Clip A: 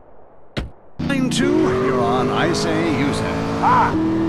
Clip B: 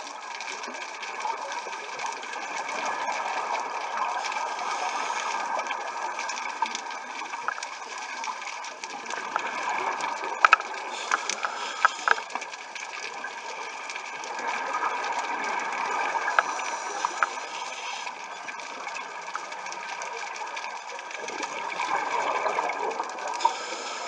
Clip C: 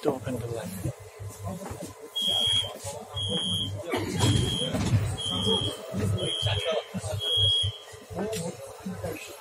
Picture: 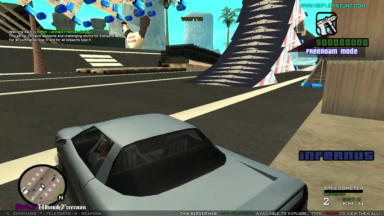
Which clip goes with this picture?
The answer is A